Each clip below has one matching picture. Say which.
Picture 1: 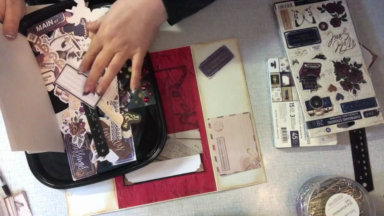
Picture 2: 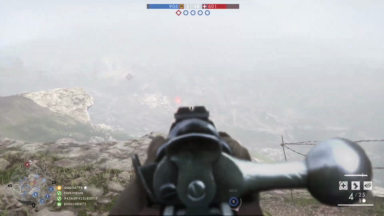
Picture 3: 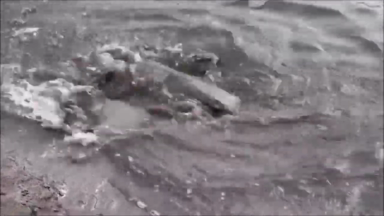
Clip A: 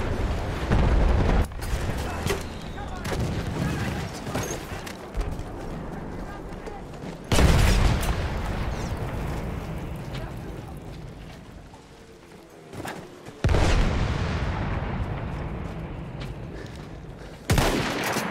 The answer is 2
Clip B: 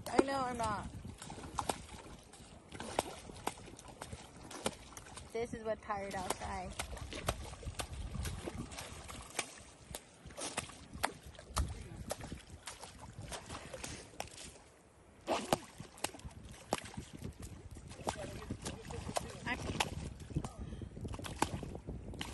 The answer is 3